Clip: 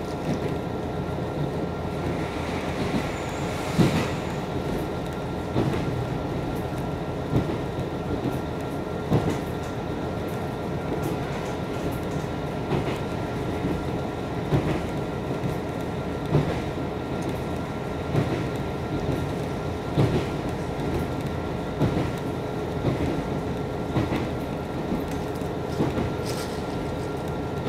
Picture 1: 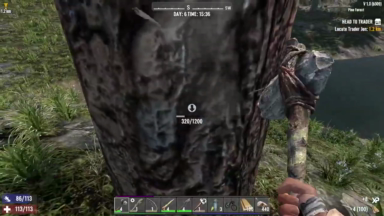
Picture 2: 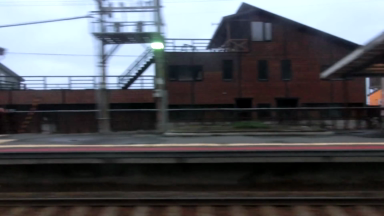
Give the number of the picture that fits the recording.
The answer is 2